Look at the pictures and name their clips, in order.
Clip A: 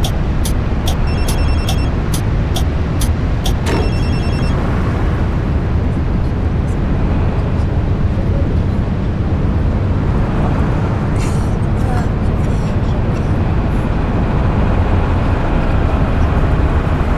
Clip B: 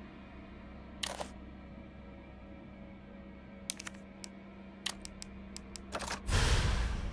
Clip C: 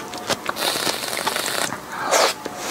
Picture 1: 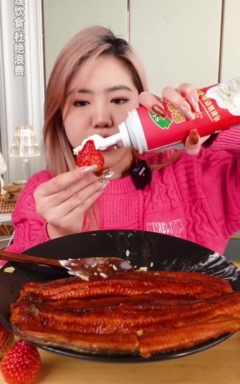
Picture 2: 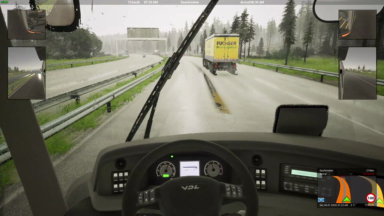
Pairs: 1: C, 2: A